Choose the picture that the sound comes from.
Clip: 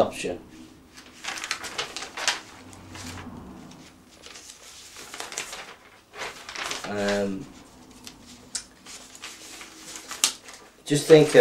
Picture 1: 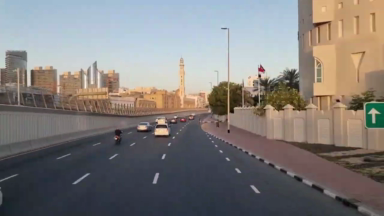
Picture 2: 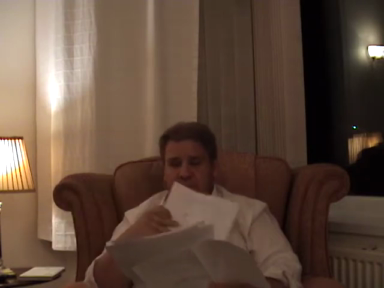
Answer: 2